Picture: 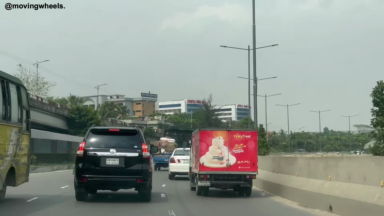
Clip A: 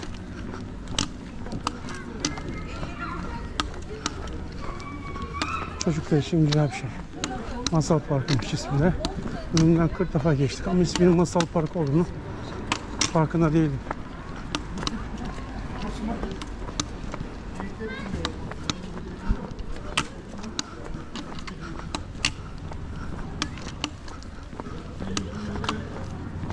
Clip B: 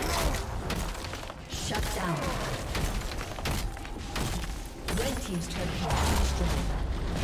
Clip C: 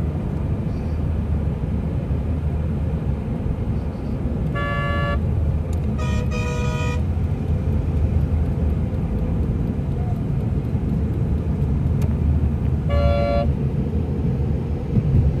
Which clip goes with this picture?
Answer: C